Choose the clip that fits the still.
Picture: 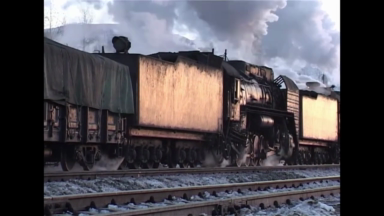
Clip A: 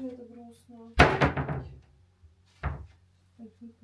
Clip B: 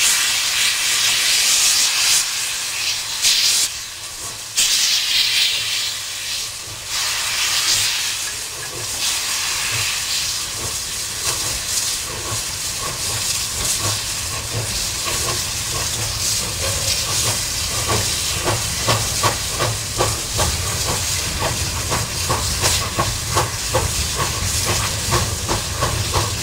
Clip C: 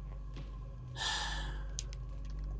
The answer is B